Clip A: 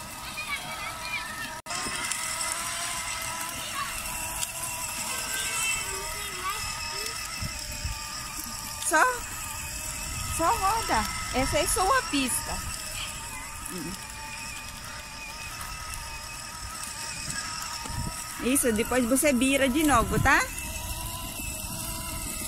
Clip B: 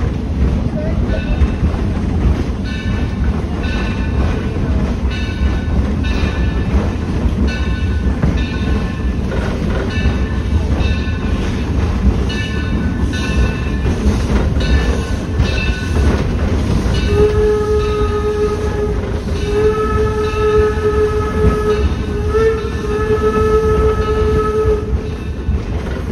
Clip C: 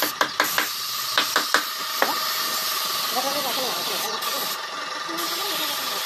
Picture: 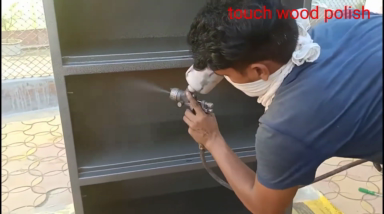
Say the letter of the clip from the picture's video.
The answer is C